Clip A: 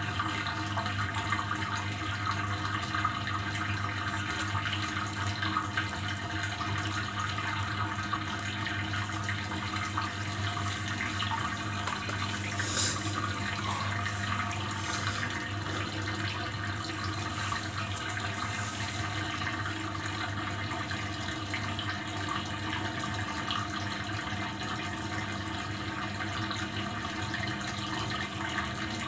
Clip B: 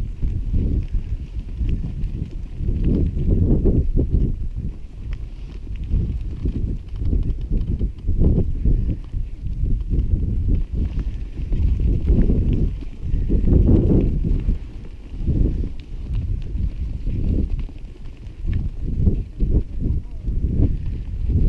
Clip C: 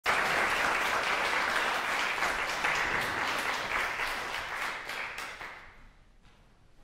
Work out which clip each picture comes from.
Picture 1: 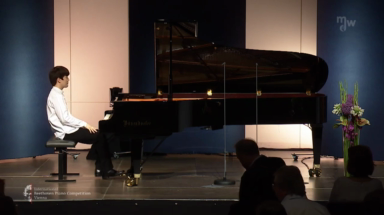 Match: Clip C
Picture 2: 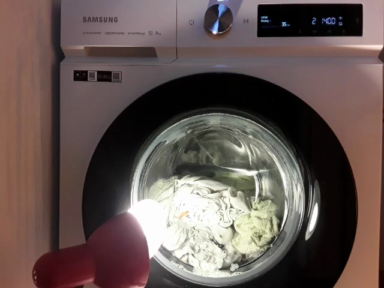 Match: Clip A